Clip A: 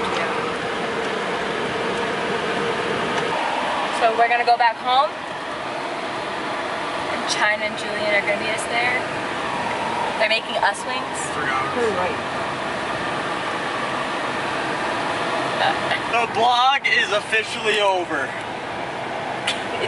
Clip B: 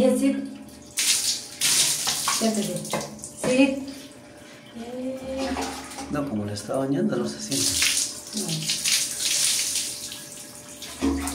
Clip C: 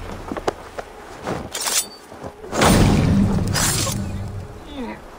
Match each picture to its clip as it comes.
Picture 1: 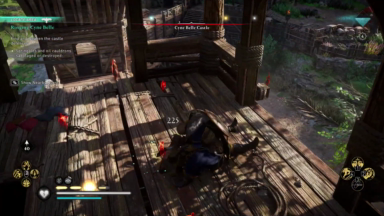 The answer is C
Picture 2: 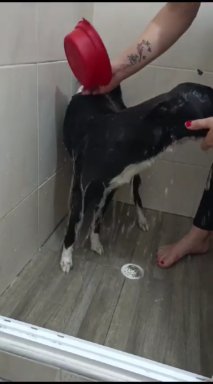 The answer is B